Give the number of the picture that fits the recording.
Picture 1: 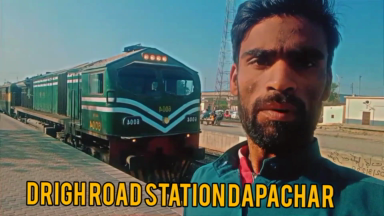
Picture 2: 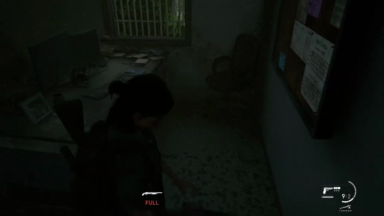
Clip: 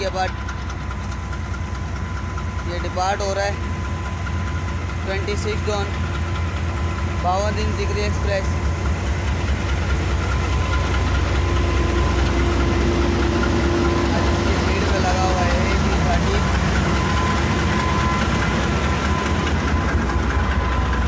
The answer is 1